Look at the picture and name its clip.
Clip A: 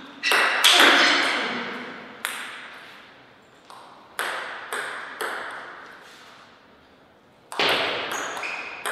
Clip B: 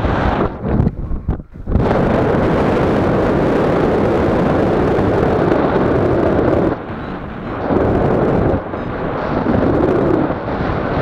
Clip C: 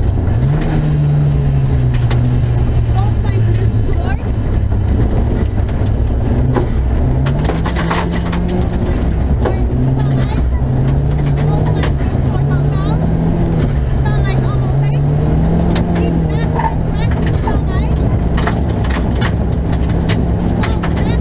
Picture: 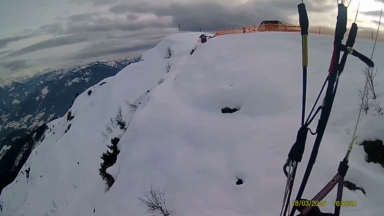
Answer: B